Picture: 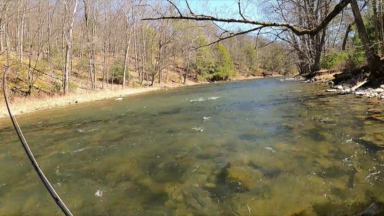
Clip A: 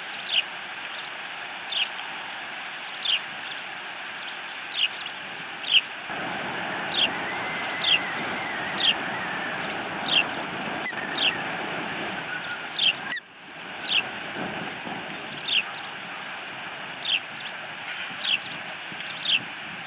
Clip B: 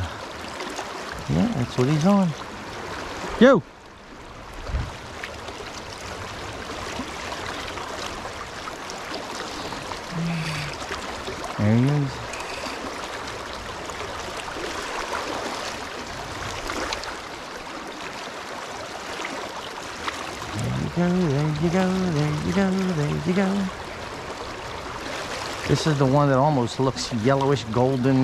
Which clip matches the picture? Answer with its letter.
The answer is B